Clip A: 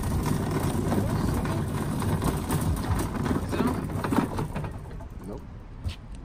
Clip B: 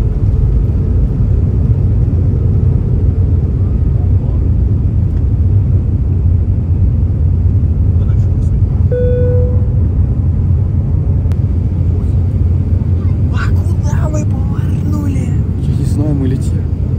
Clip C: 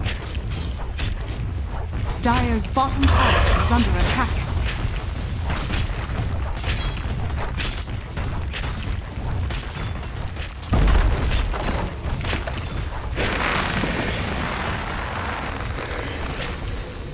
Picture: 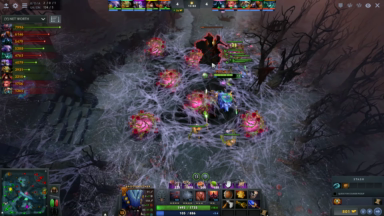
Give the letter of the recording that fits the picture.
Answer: C